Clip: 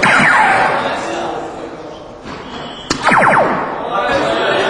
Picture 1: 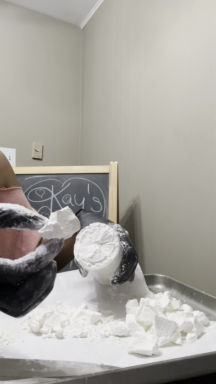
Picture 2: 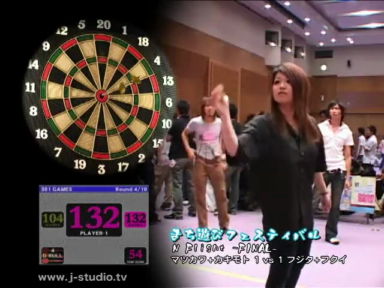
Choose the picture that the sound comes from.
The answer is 2